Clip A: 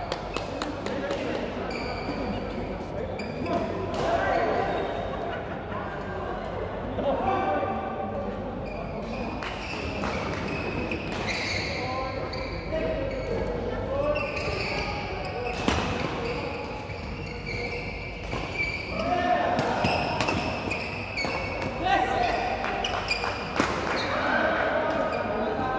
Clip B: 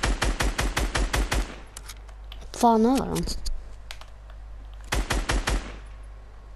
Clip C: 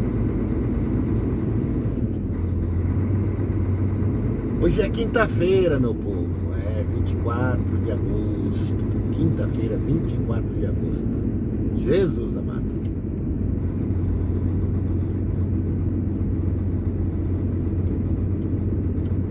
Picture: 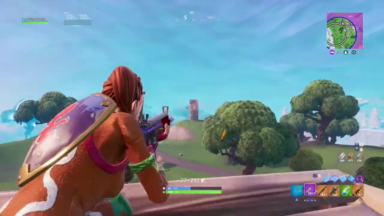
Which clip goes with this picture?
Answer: B